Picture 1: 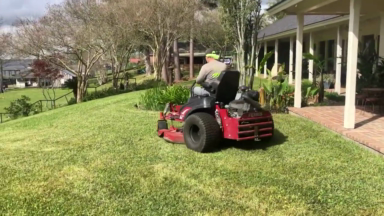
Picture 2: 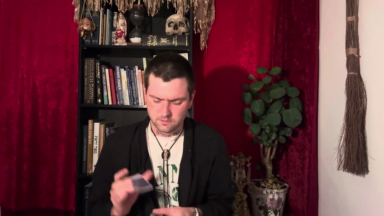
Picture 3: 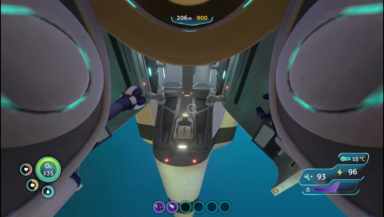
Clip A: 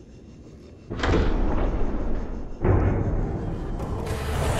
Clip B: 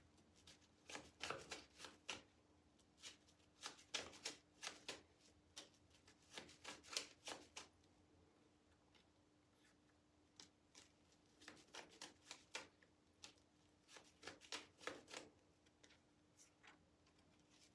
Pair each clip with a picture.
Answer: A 3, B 2